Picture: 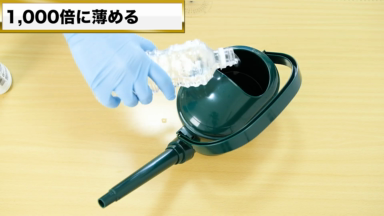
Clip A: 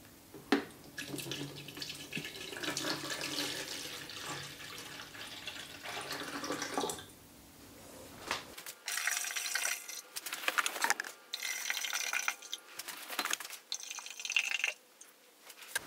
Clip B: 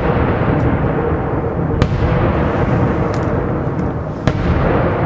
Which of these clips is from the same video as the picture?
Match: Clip A